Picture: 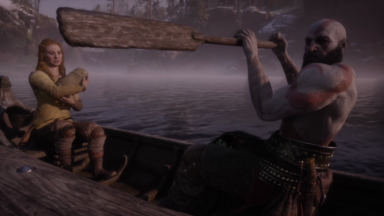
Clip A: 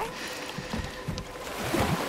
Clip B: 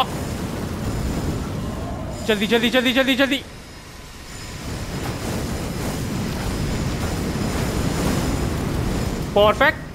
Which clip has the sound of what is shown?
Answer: A